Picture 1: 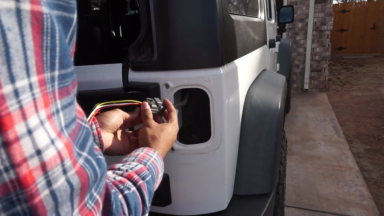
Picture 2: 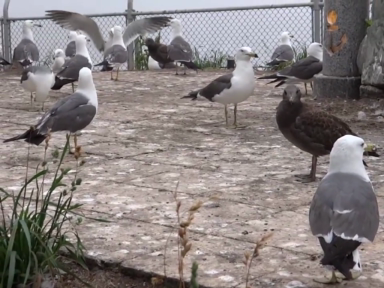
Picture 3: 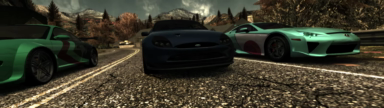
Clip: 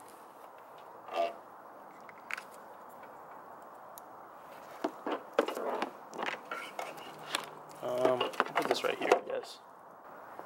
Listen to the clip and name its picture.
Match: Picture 1